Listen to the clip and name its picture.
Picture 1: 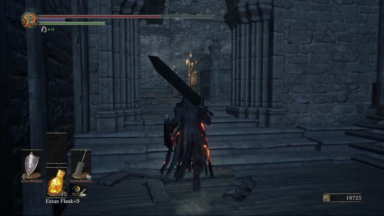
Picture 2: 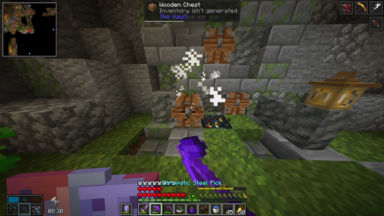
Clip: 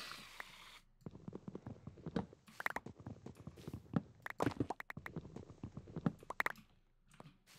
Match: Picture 2